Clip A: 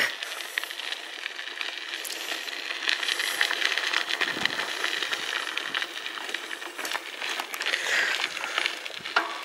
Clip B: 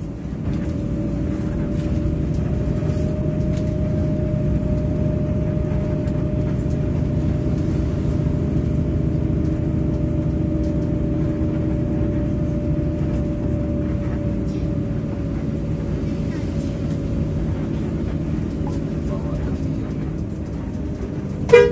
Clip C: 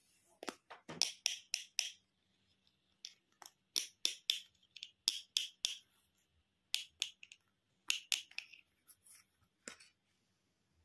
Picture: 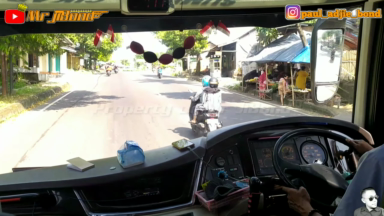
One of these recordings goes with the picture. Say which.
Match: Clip B